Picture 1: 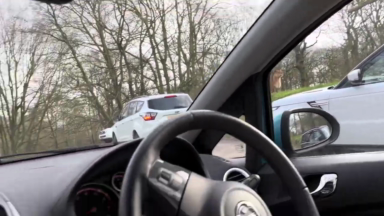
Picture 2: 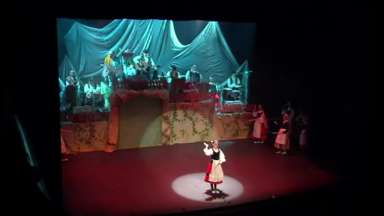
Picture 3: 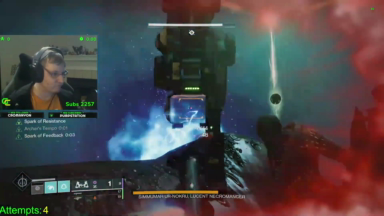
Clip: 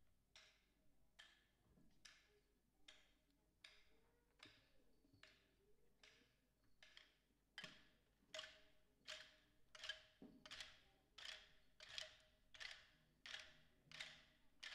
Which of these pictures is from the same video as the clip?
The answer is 2